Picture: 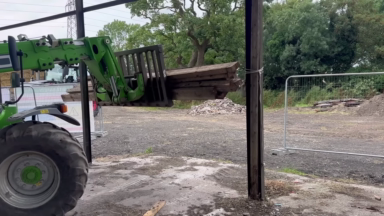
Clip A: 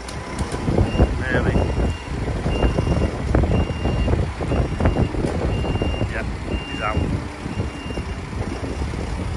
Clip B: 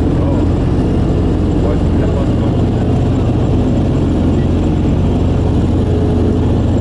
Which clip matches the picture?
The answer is A